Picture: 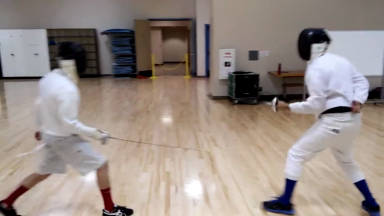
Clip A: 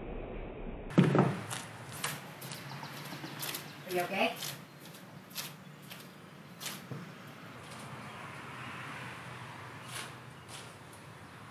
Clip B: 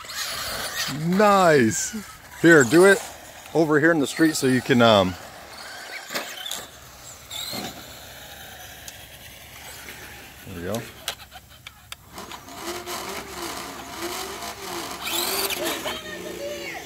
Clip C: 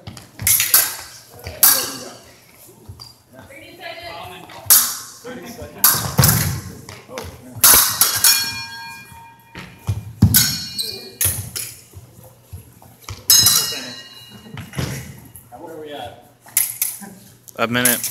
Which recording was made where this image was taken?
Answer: C